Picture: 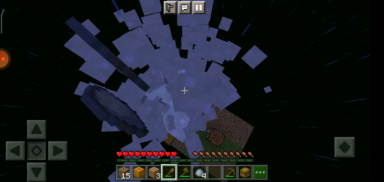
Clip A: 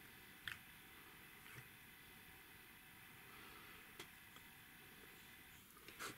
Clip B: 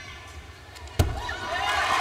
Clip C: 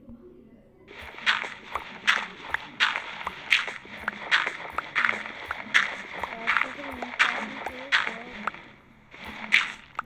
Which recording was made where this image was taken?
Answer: C